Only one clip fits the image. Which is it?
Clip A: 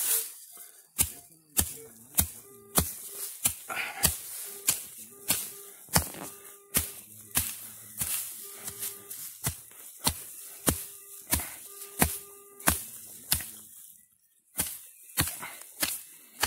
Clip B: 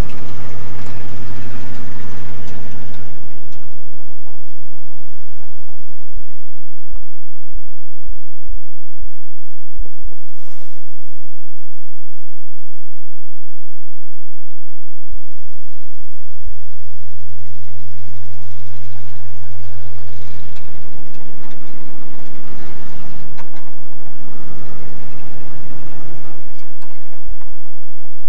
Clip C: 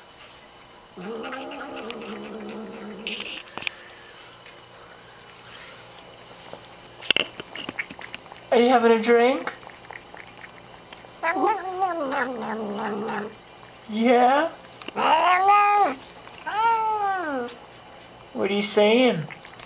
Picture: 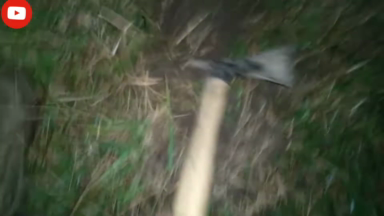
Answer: A